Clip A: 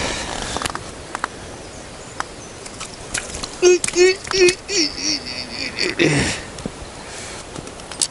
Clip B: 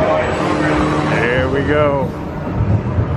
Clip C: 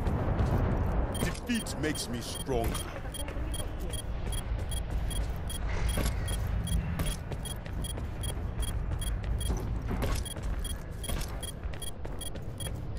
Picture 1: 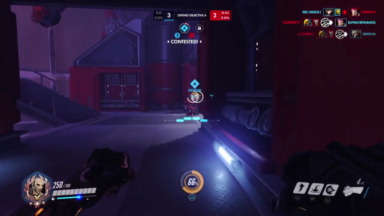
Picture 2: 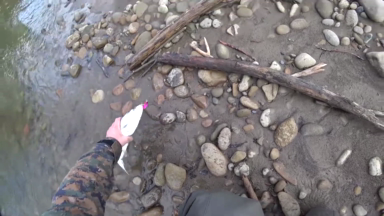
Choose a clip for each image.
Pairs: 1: C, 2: A